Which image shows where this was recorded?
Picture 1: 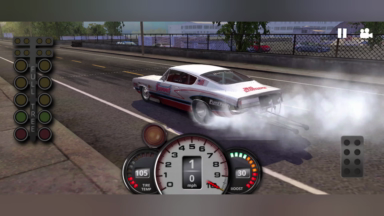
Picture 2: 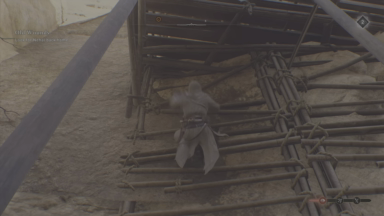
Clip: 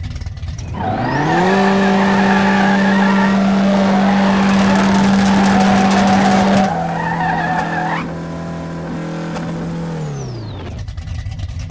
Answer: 1